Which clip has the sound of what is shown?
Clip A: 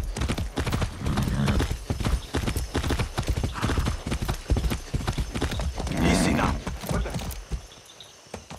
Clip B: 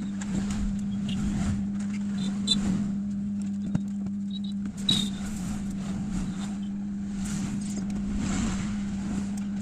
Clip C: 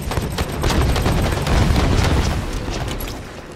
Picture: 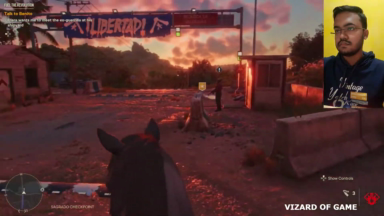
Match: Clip A